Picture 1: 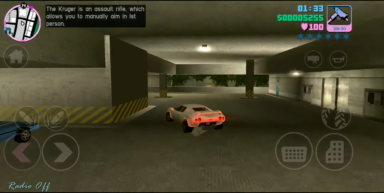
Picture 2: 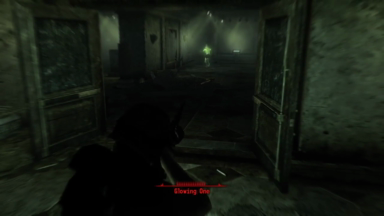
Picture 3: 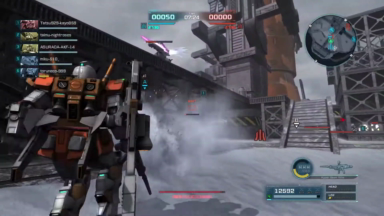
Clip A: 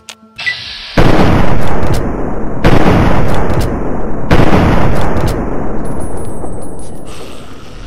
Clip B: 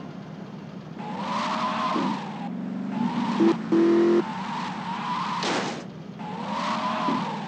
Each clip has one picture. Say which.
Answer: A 2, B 1